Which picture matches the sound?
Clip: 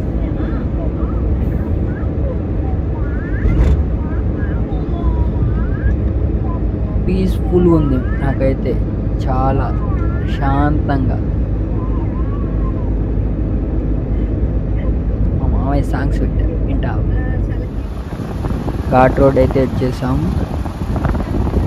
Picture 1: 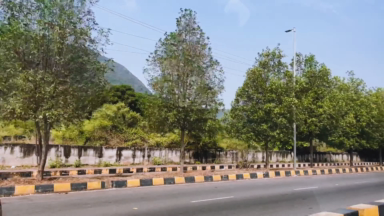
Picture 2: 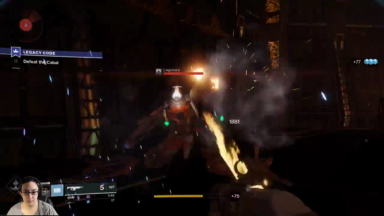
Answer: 1